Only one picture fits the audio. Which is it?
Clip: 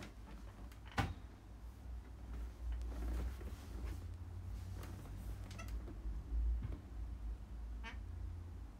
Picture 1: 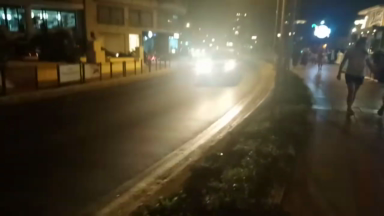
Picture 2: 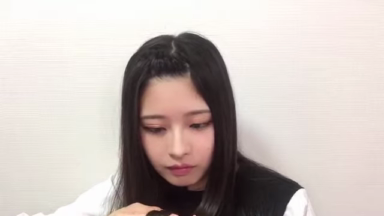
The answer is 2